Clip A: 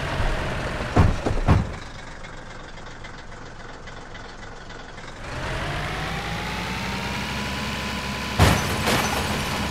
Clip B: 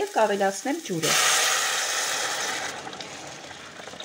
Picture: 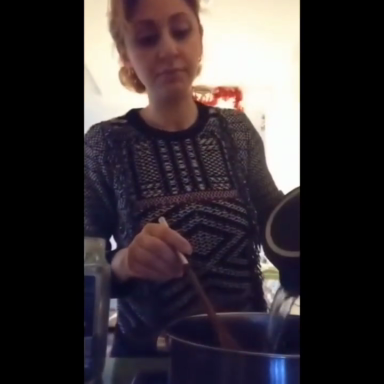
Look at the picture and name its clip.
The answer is B